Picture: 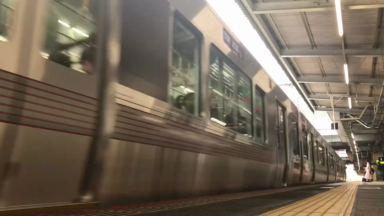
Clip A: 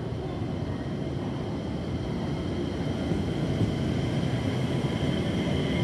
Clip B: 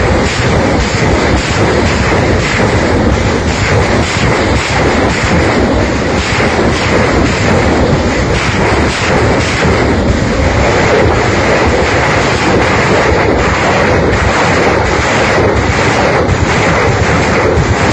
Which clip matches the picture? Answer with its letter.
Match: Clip A